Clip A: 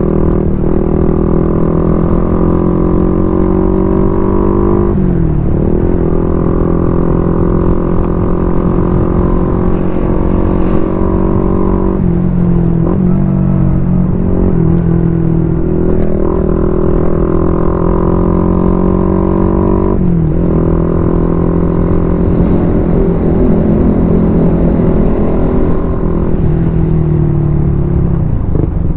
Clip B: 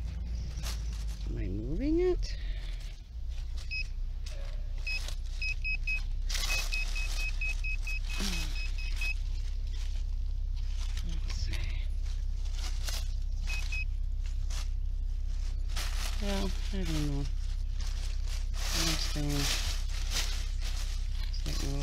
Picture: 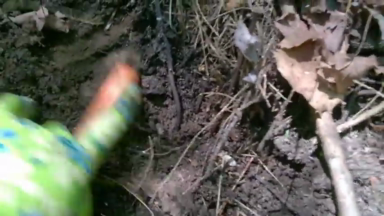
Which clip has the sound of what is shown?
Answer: B